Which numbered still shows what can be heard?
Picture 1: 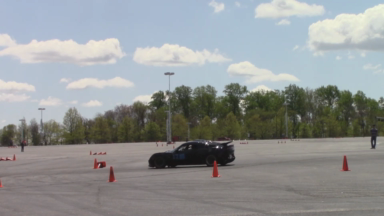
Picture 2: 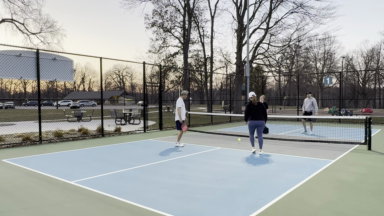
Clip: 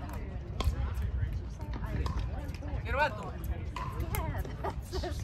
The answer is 2